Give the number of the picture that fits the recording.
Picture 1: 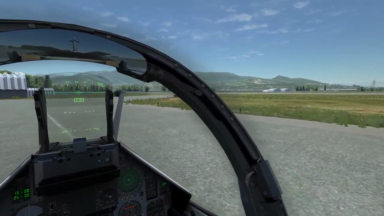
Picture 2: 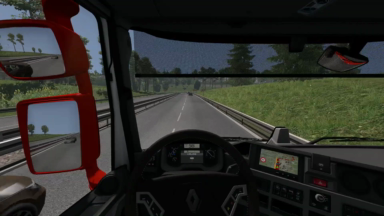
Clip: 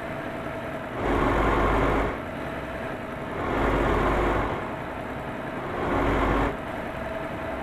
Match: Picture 2